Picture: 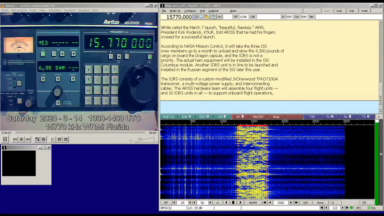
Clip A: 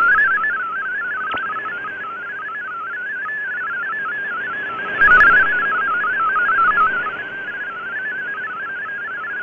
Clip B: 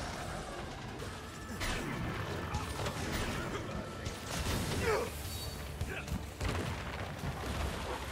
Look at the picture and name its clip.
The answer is A